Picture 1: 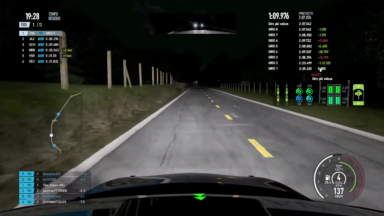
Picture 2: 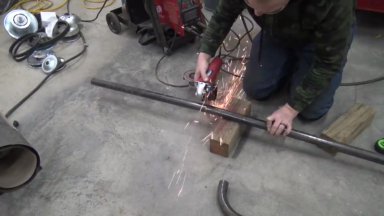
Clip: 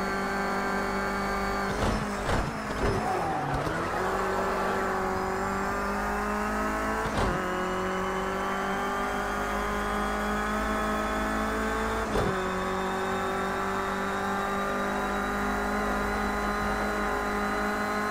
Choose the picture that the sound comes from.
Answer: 1